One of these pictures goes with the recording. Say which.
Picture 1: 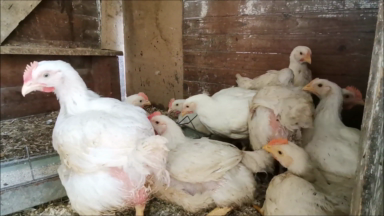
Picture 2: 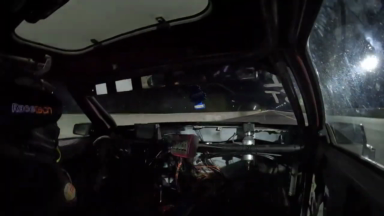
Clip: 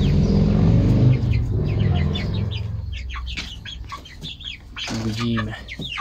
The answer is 1